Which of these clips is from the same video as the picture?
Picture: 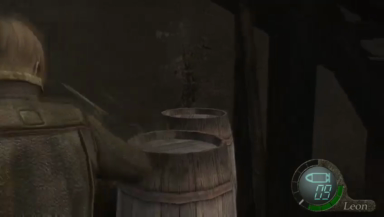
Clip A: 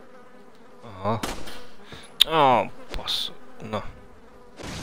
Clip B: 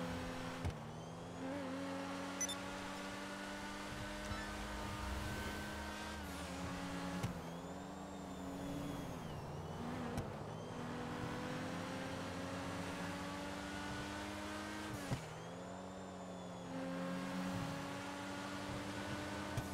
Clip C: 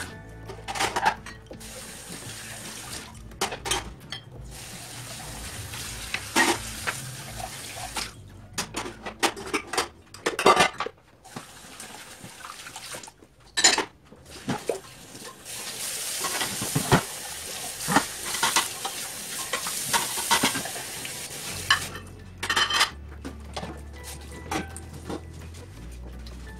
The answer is A